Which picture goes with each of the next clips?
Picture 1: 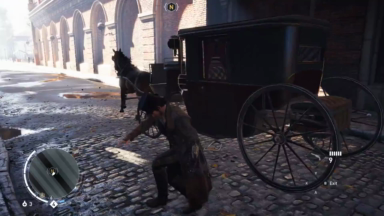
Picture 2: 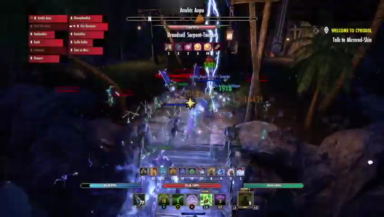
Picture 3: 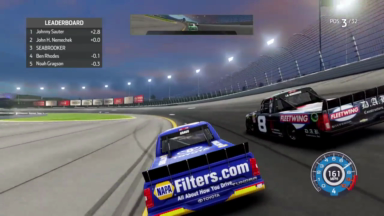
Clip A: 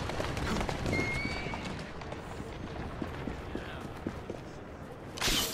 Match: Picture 1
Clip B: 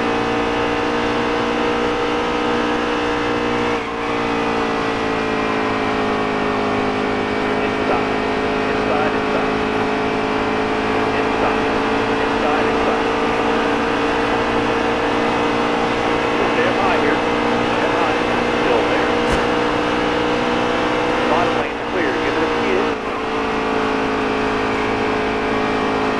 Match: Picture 3